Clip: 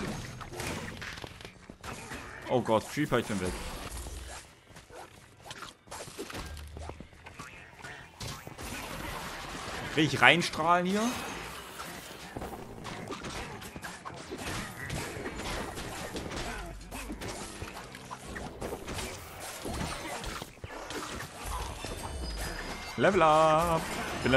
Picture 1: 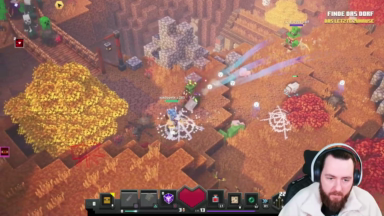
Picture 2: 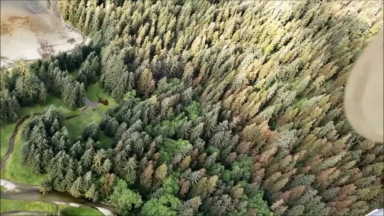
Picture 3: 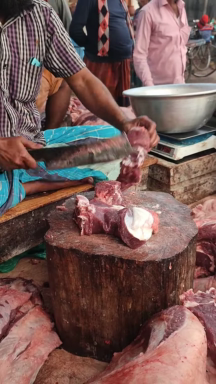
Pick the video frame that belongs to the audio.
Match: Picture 1